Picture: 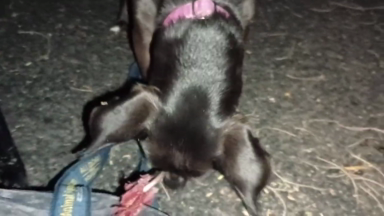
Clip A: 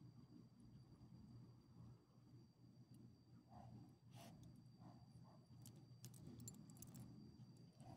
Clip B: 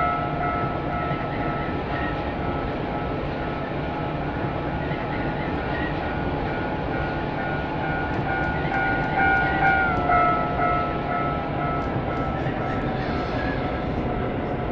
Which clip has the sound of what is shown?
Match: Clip A